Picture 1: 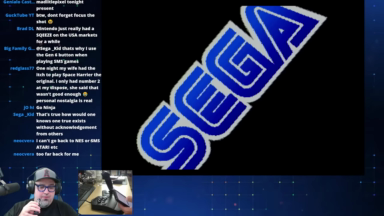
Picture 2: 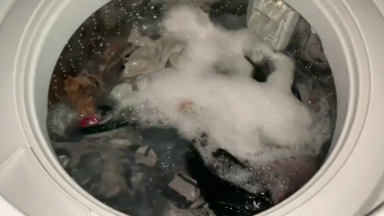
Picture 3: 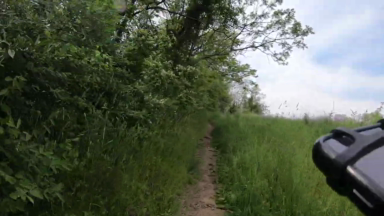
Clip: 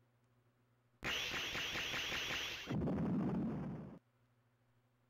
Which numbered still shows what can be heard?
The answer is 1